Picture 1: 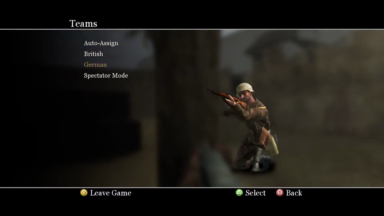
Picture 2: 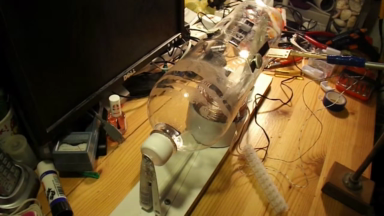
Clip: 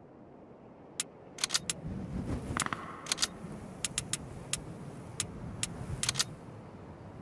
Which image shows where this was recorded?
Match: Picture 1